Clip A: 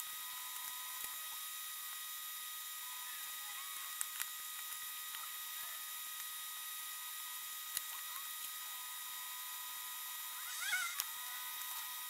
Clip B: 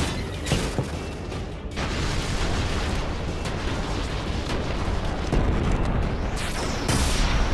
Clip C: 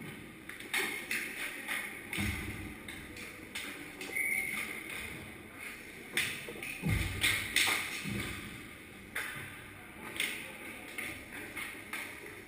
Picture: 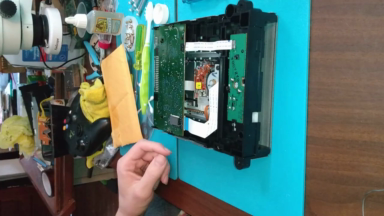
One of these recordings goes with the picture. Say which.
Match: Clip A